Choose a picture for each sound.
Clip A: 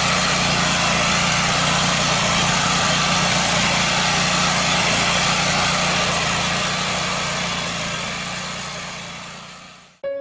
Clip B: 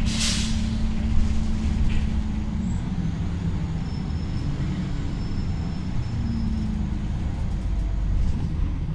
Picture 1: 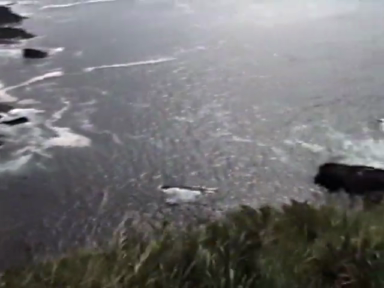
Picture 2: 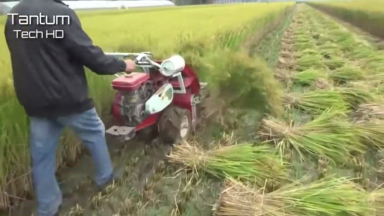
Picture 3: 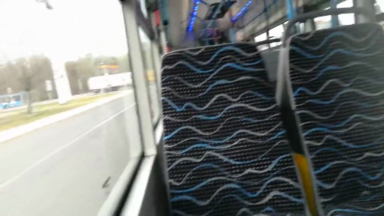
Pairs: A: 2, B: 3